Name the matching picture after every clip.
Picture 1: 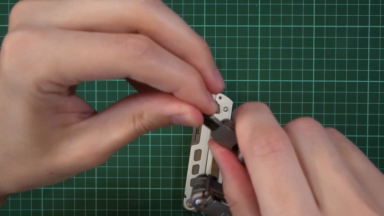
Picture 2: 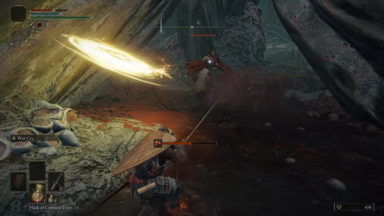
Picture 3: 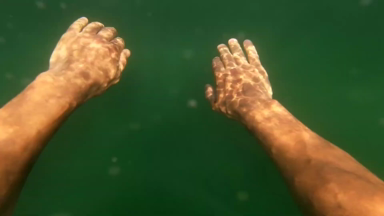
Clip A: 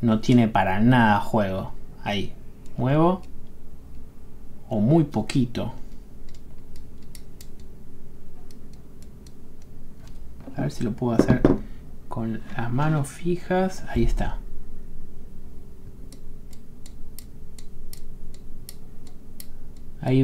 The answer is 1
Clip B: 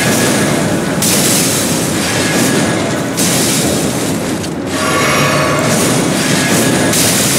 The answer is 2